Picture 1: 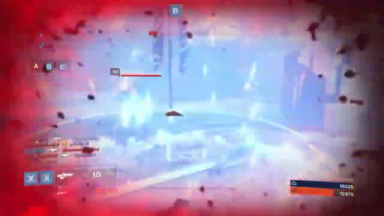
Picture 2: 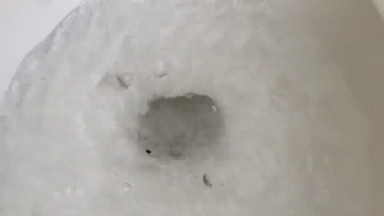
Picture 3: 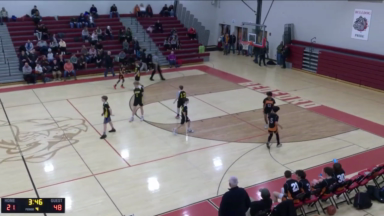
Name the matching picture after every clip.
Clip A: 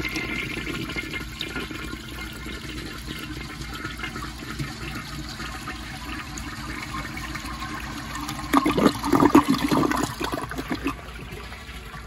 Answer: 2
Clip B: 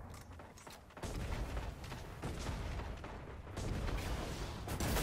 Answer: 1